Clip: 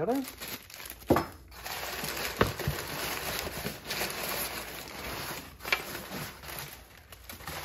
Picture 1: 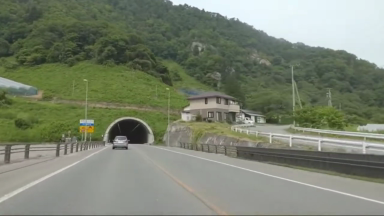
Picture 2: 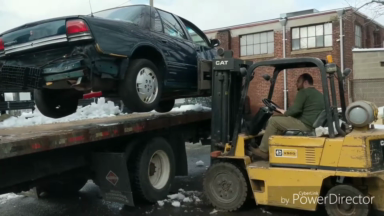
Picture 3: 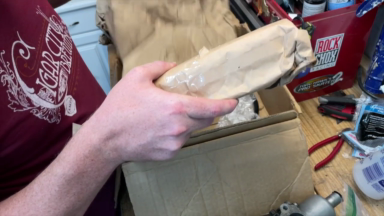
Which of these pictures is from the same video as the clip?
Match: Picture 3